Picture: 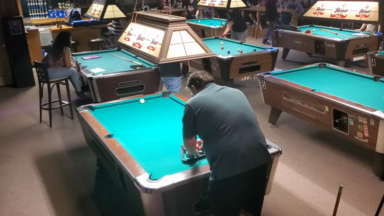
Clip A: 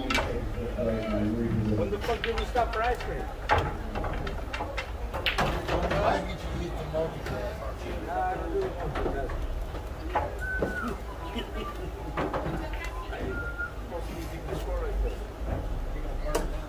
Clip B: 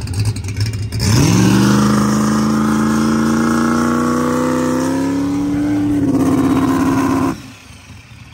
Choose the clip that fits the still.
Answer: A